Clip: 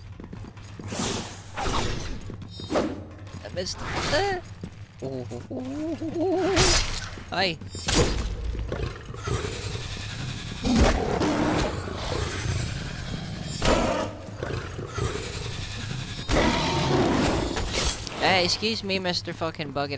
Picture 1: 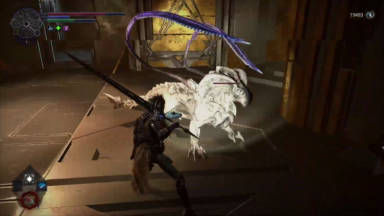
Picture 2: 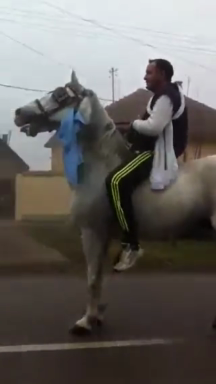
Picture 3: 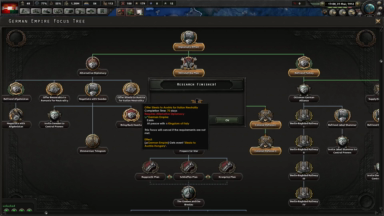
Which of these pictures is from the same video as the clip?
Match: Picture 1